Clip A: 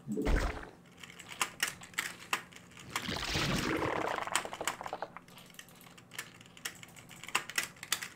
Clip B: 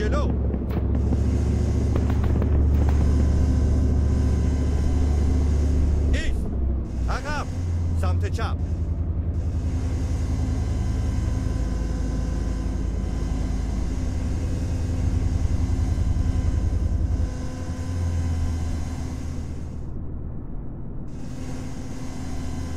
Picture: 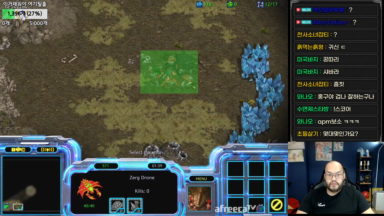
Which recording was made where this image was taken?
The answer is A